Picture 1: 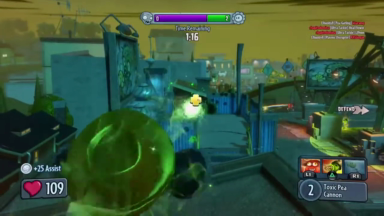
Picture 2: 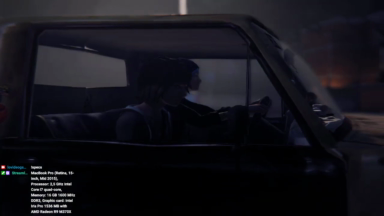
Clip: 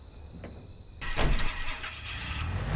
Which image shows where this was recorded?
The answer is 2